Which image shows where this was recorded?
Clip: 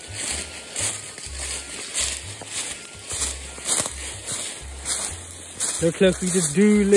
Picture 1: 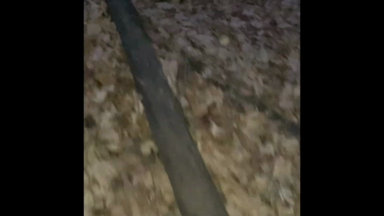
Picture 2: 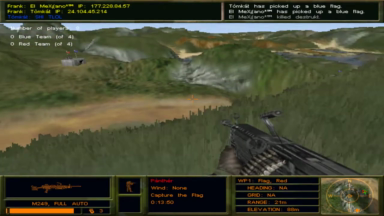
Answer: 1